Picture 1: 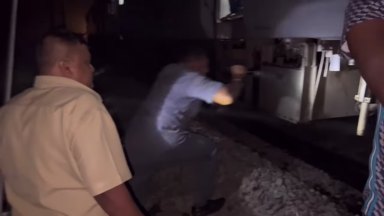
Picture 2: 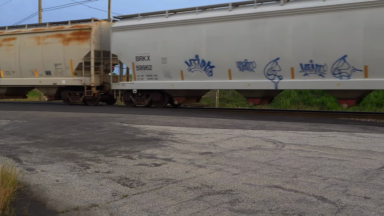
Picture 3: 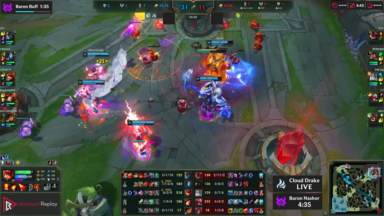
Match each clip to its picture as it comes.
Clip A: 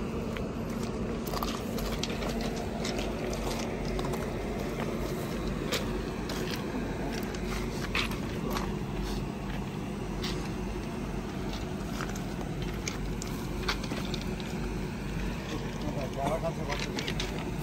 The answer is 1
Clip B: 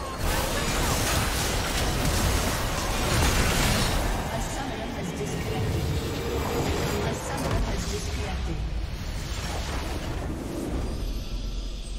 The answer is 3